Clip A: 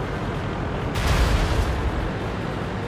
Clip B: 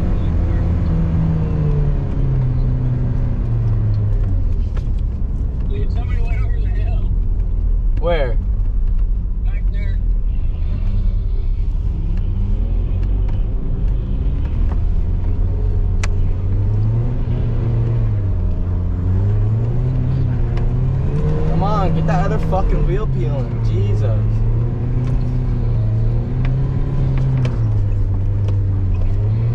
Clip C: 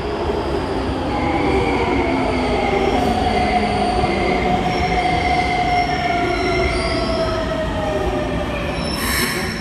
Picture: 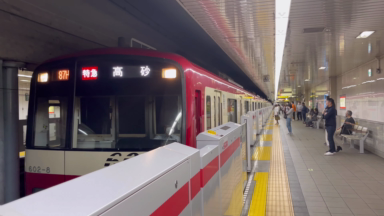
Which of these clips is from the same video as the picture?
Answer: C